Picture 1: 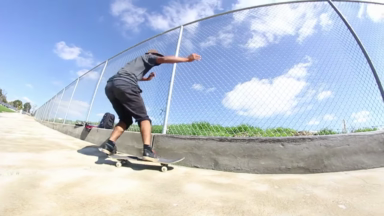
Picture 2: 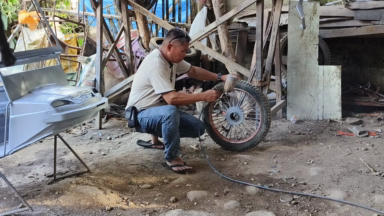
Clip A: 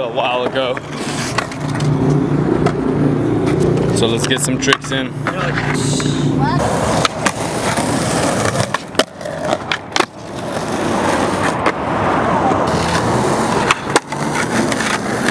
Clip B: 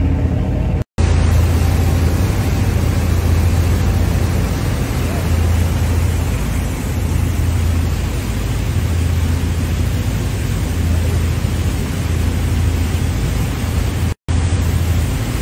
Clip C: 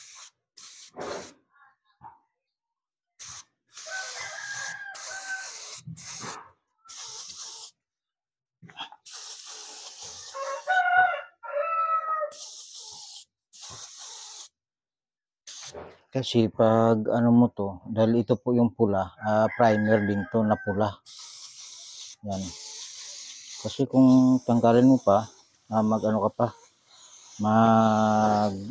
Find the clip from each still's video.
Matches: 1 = A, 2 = C